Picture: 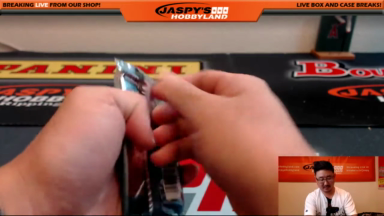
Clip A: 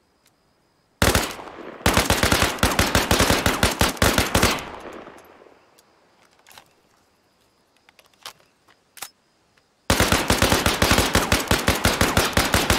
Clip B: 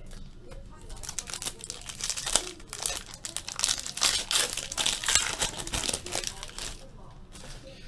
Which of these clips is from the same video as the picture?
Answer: B